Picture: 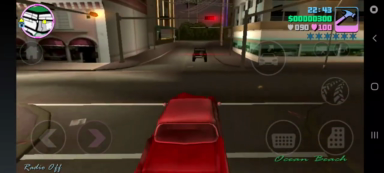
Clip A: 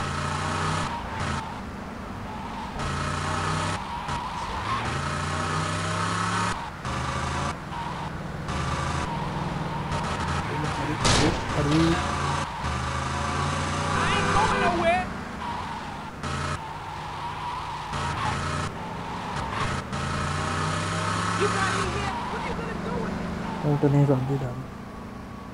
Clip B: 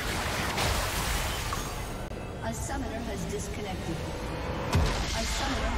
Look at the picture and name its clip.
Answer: A